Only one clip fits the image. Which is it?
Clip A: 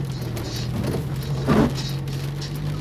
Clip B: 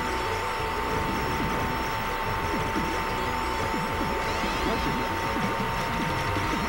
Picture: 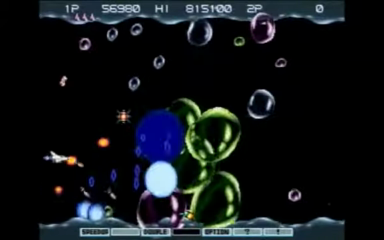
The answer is B